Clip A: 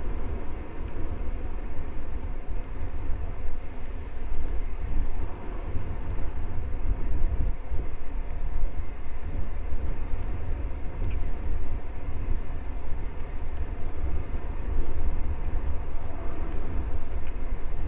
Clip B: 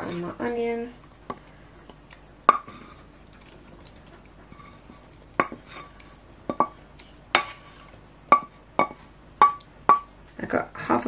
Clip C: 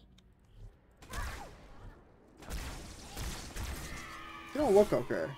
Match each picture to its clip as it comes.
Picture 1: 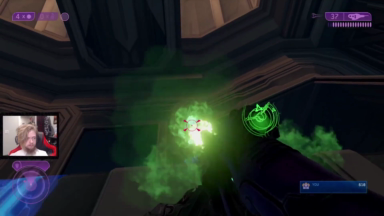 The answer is C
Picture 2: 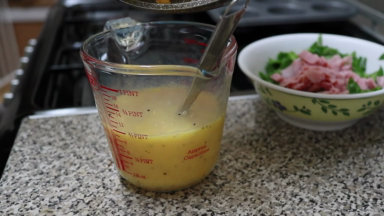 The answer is B